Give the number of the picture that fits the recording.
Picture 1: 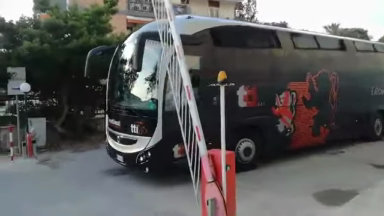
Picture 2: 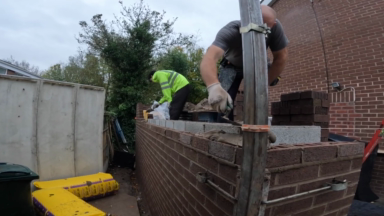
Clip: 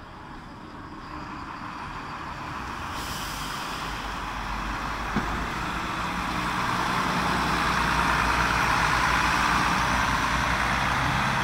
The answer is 1